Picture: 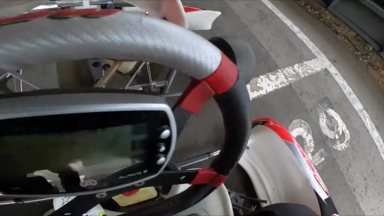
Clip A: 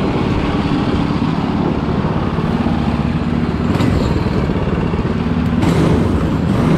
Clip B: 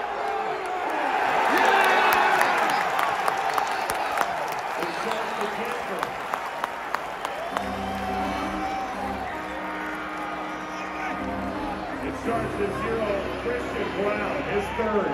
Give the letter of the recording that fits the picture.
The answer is A